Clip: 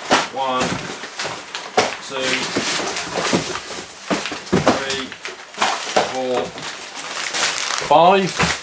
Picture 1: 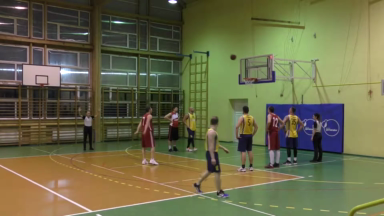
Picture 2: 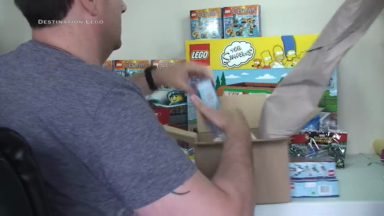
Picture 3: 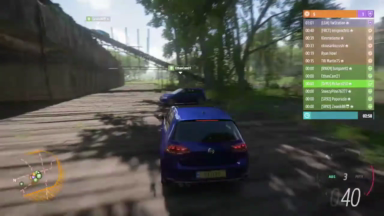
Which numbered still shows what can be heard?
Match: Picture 2